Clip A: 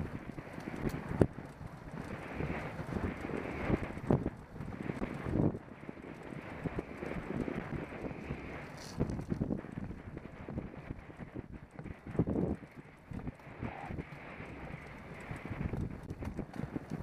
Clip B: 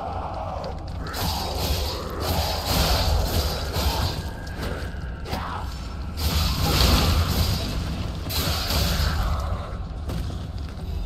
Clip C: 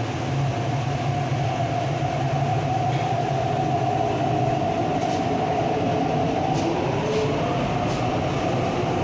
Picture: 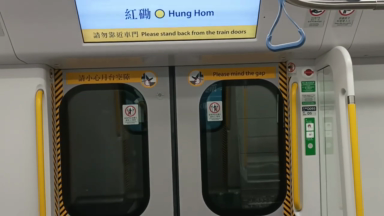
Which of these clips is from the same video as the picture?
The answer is C